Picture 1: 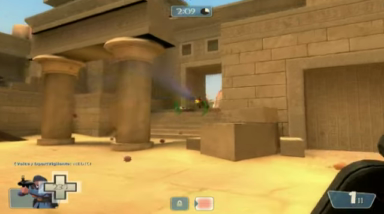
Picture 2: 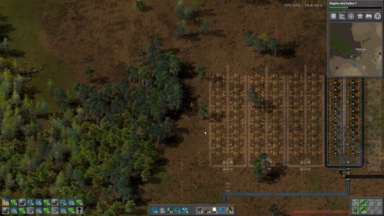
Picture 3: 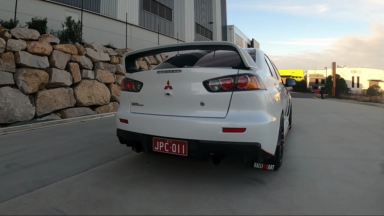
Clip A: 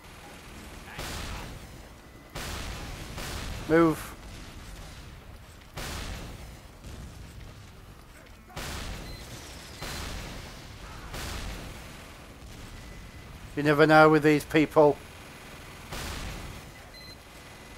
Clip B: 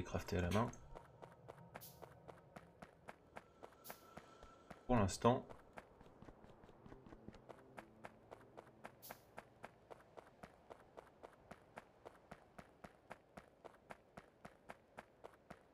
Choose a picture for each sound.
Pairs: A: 1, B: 2